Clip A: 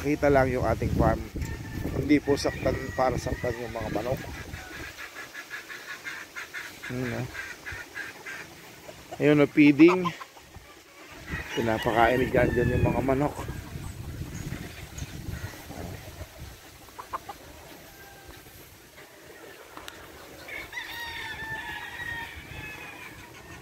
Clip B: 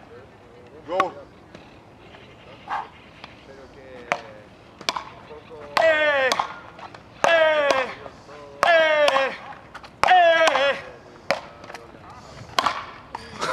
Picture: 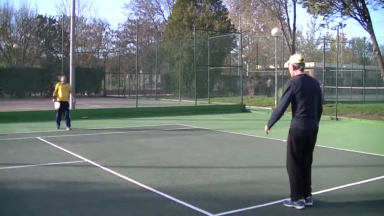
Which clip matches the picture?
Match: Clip B